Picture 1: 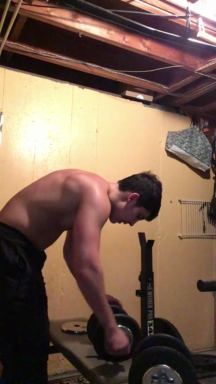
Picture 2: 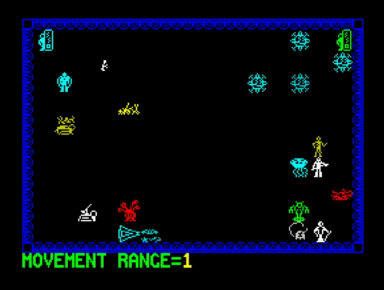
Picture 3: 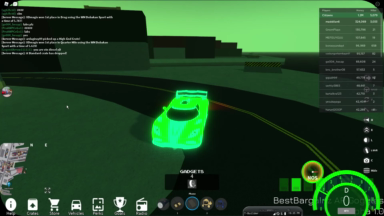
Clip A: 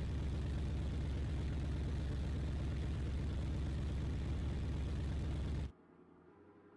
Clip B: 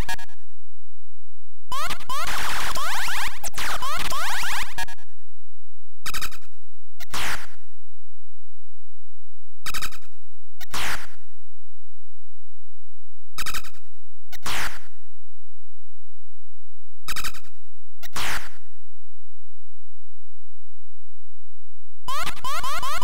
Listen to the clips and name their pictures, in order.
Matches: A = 3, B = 2